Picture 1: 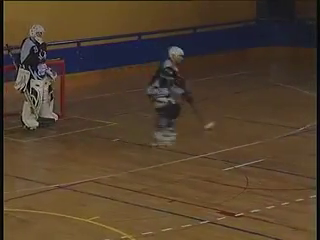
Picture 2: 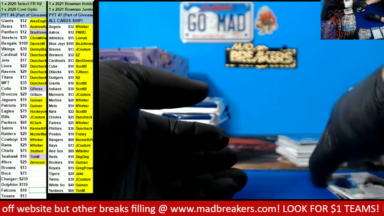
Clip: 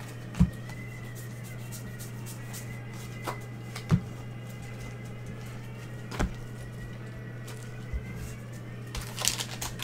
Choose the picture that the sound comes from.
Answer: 2